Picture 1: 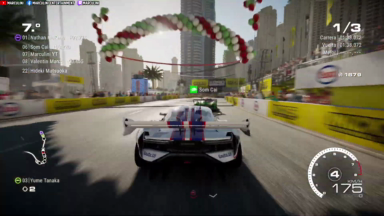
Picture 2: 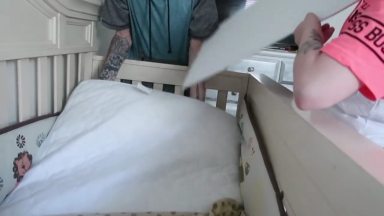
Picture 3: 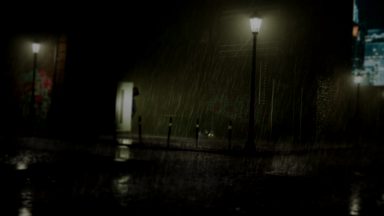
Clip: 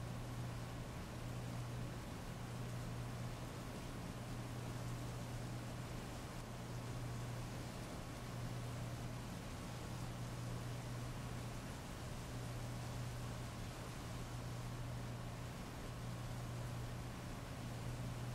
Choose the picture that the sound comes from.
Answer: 3